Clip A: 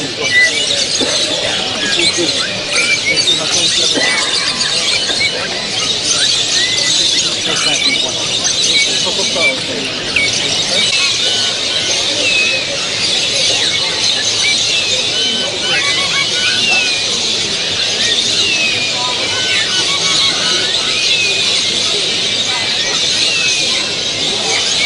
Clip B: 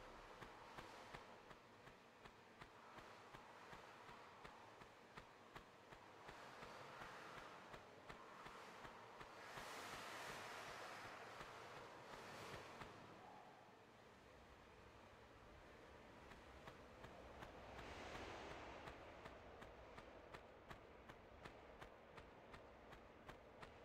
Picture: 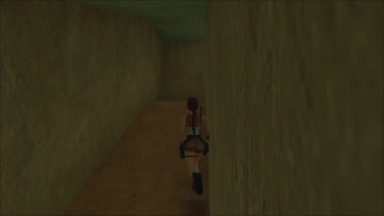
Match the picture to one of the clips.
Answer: B